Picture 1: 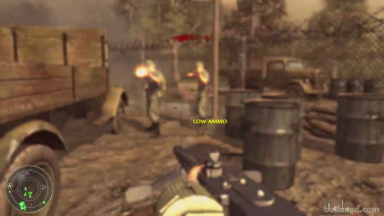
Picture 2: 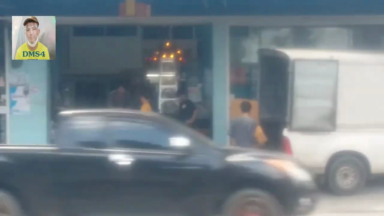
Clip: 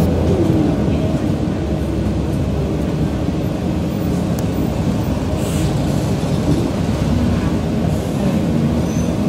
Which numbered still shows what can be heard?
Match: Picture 2